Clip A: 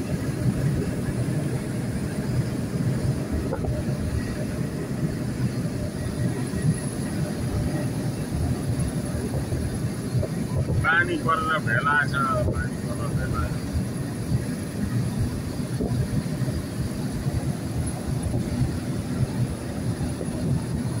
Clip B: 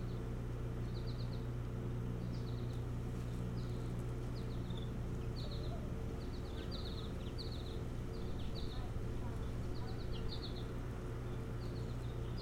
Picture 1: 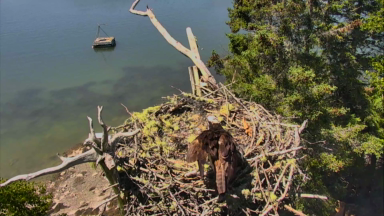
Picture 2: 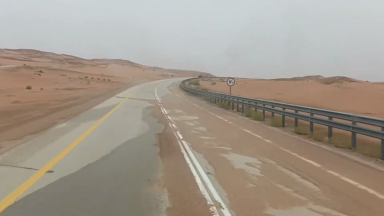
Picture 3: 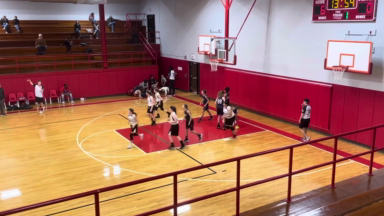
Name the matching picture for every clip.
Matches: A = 2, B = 1